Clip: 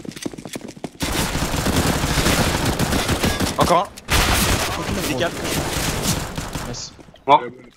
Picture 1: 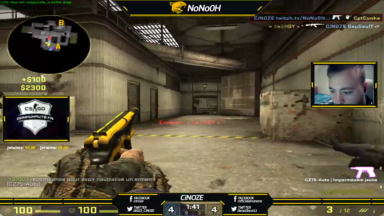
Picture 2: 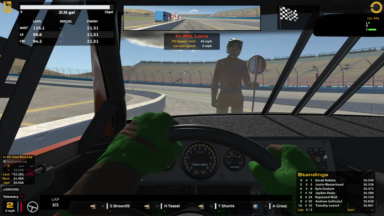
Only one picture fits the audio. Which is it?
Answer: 1